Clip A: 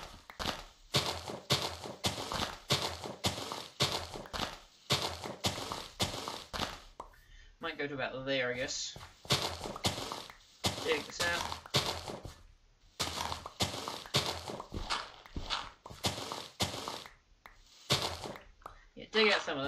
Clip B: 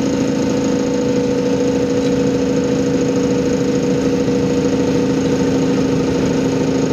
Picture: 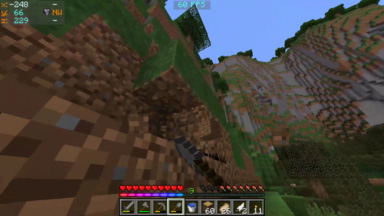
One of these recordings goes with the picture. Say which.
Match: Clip A